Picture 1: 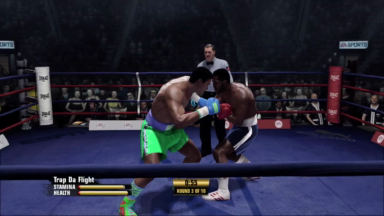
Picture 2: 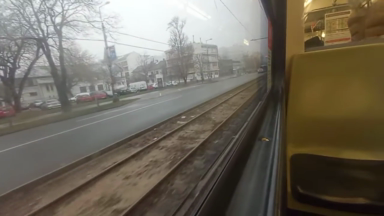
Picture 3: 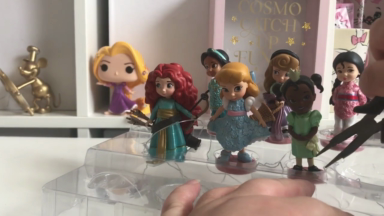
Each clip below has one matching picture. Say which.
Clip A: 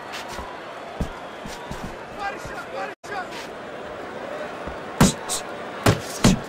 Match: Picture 1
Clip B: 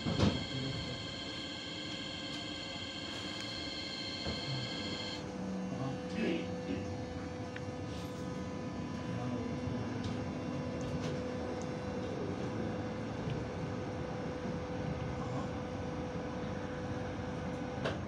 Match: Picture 2